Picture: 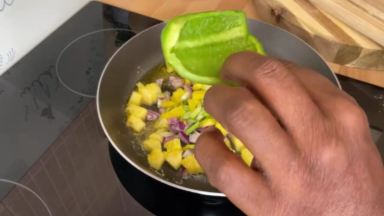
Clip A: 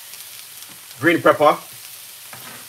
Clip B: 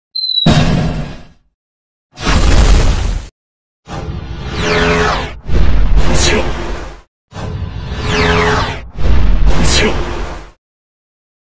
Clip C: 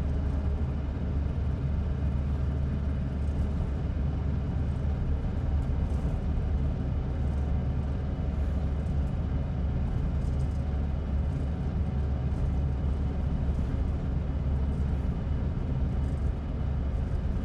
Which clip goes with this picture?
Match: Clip A